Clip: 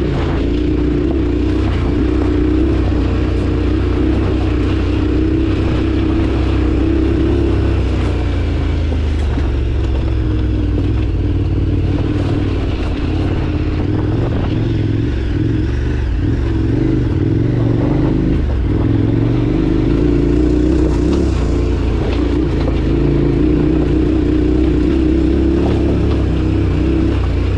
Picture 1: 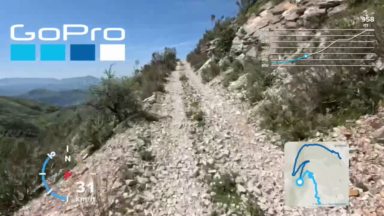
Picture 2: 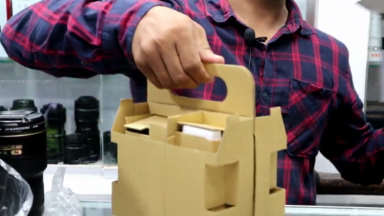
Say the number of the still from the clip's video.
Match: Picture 1